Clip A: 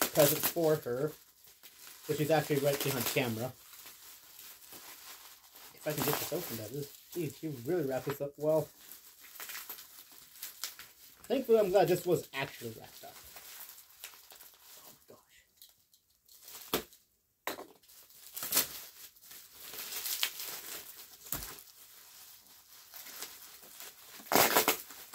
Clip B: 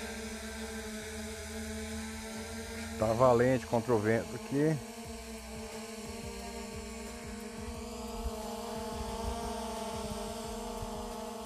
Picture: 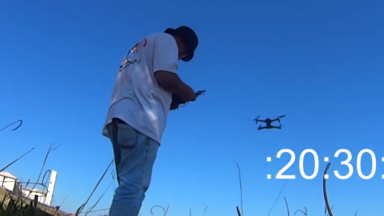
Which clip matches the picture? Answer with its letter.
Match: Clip B